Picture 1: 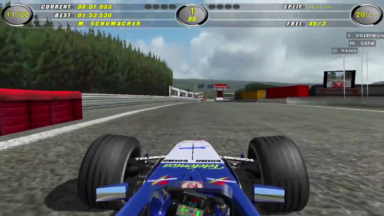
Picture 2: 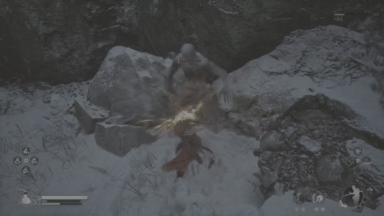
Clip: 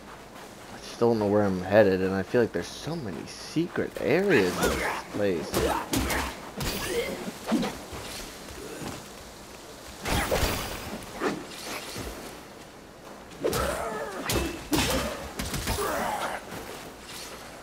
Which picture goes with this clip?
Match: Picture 2